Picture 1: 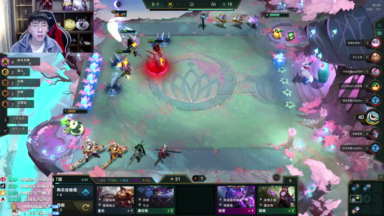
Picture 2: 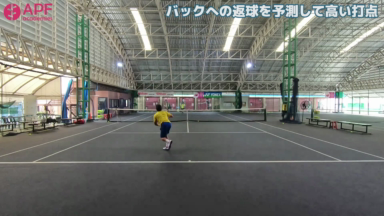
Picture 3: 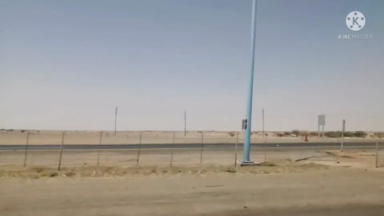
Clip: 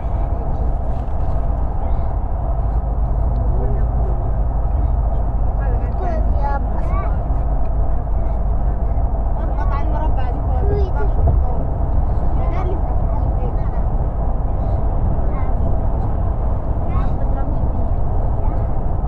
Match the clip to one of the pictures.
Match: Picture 3